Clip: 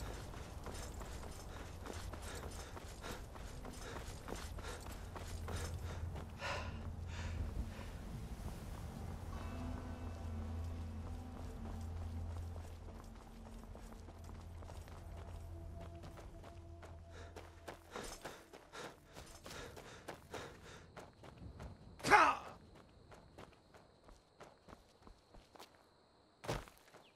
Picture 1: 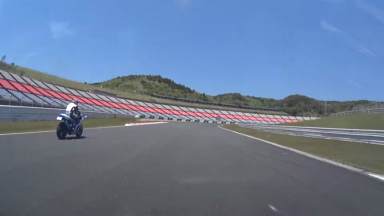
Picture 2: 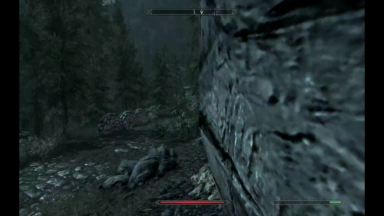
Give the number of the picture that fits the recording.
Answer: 2